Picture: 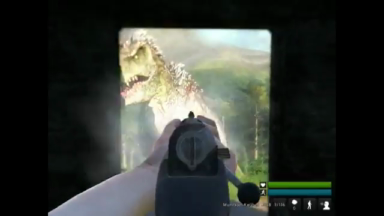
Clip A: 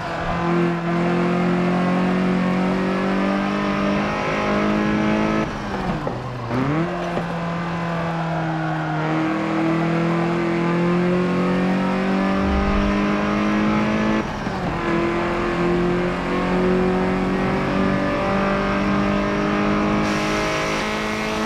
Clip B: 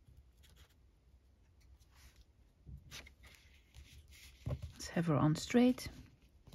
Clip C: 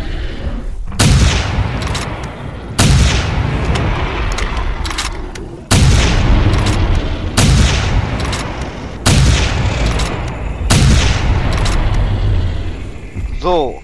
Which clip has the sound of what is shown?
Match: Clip C